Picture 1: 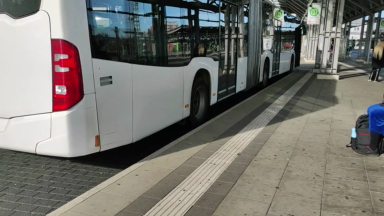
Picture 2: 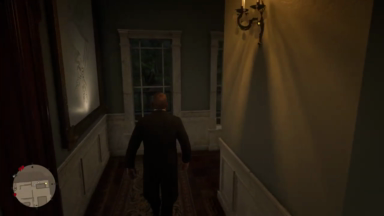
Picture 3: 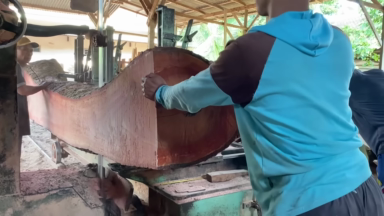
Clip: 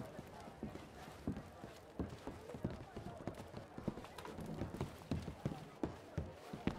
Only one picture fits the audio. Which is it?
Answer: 2